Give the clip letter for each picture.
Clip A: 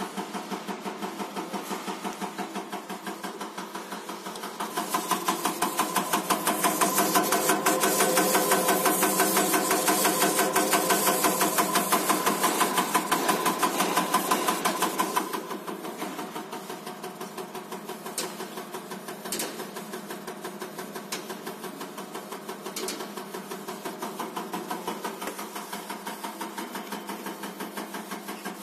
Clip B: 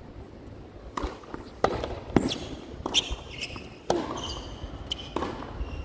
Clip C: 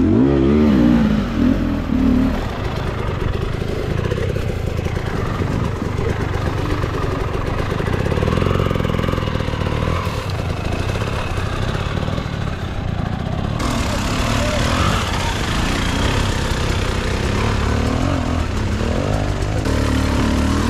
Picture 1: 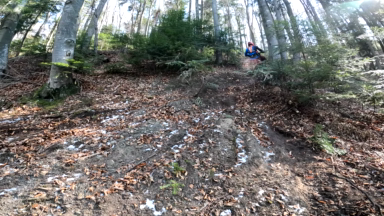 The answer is C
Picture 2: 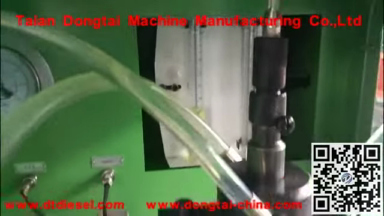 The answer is A